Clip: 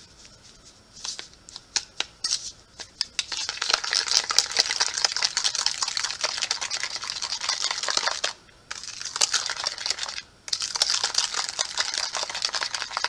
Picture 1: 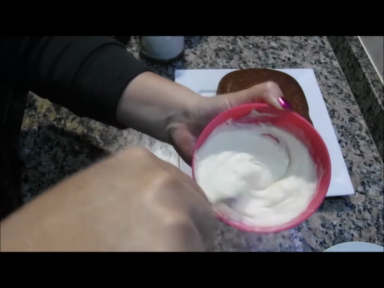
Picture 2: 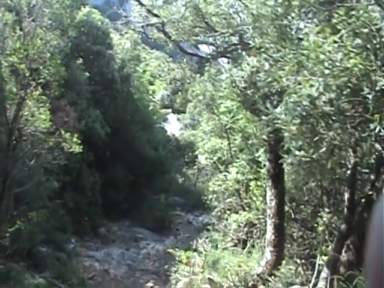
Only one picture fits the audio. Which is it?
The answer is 1